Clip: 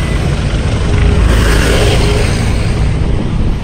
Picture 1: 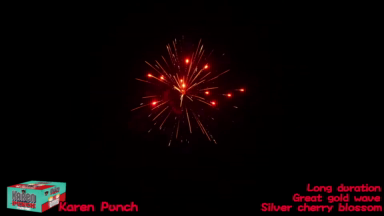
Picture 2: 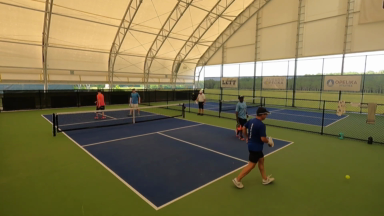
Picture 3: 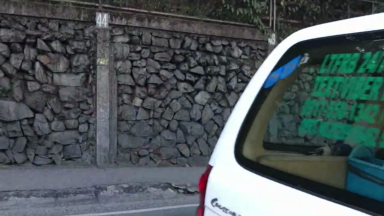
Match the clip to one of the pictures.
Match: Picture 3